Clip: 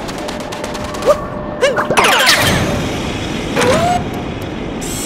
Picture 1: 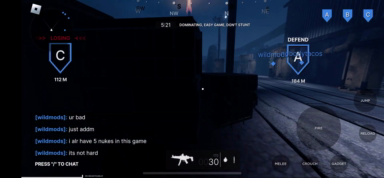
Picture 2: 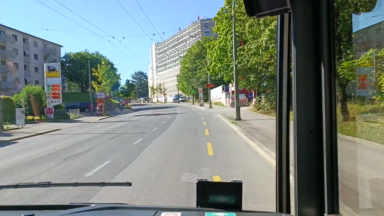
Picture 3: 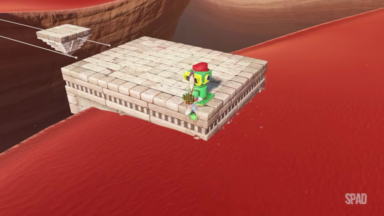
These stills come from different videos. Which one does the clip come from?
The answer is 3